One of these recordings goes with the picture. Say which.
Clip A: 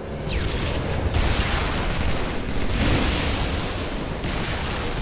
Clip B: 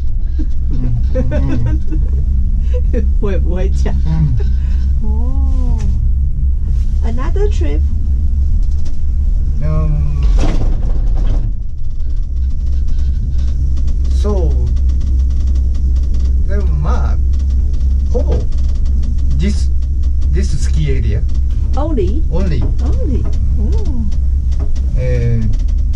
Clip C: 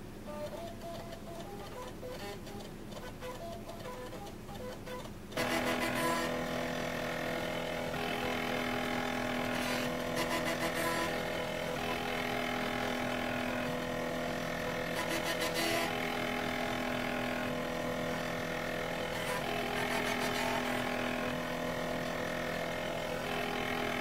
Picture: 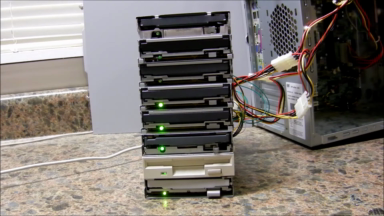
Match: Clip C